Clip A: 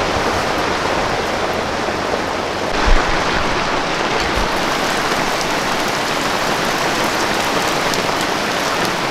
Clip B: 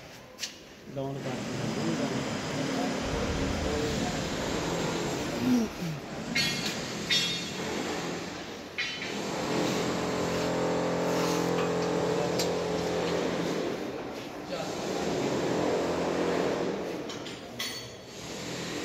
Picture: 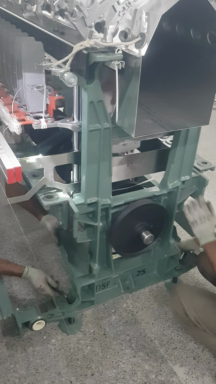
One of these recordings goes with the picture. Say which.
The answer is B